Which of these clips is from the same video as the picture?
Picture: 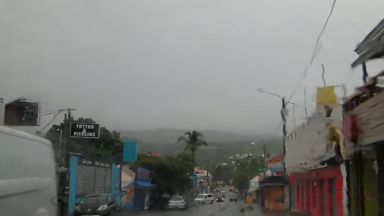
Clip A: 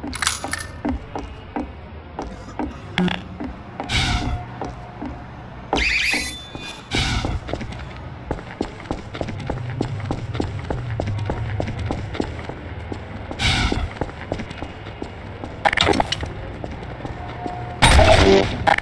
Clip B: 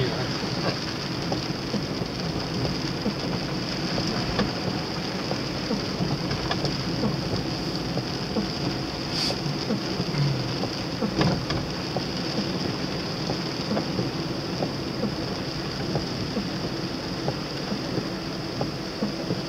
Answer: B